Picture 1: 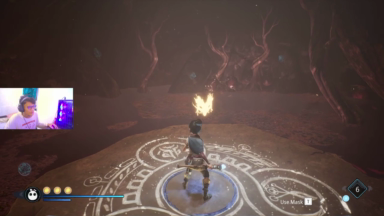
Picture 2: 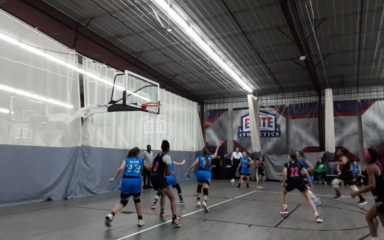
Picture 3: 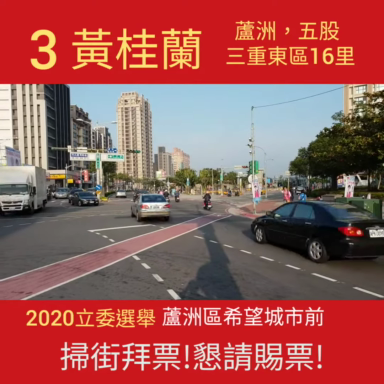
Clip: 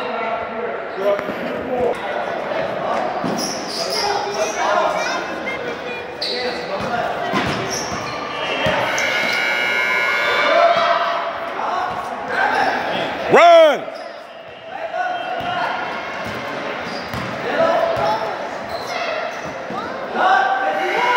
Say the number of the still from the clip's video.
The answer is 2